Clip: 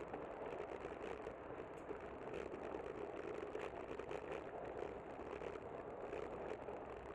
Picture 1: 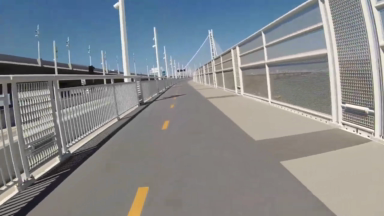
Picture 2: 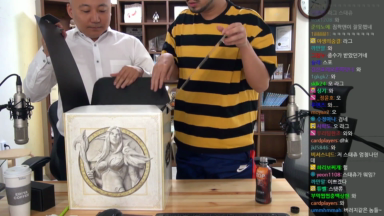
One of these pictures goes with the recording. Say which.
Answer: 1